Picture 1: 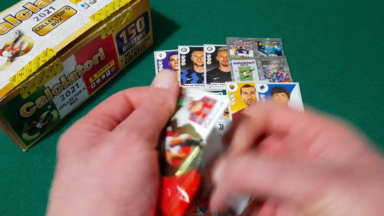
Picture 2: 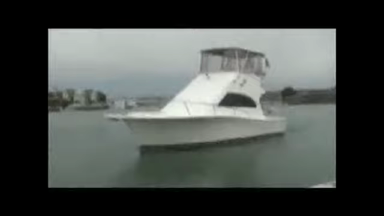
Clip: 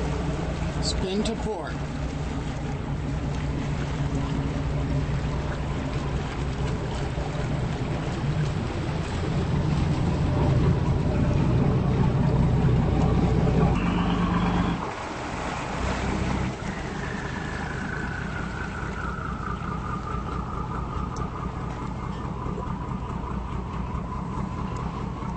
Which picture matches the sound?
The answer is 2